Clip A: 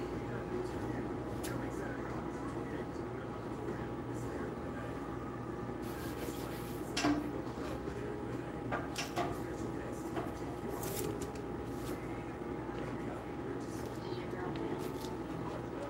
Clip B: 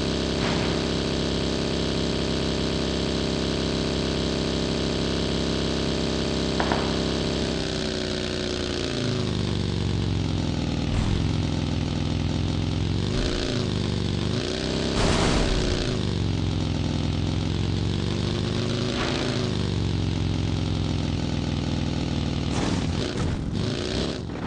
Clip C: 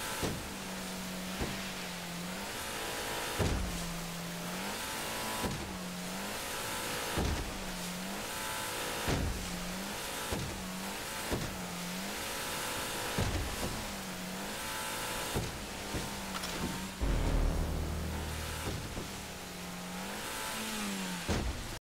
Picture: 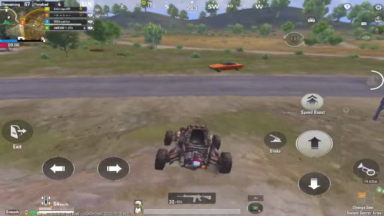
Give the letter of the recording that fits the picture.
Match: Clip B